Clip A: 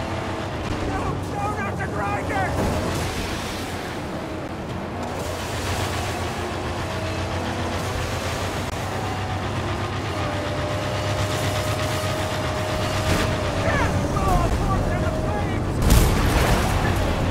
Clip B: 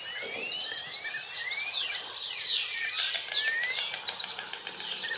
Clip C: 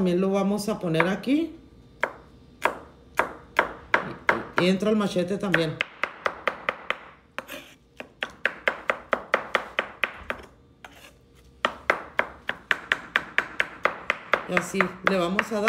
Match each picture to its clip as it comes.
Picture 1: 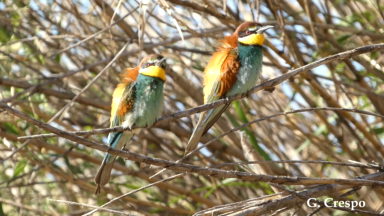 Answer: B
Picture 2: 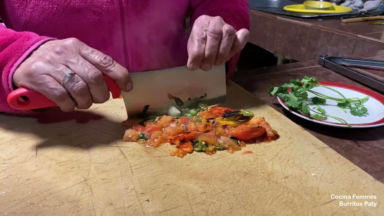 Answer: C